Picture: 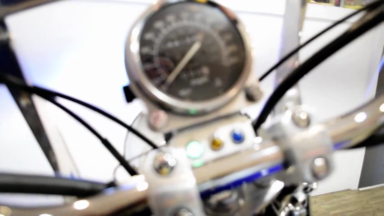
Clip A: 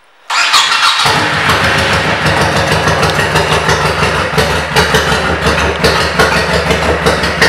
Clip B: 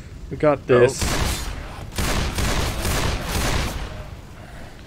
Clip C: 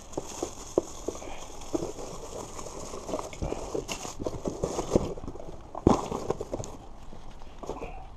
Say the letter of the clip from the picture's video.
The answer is A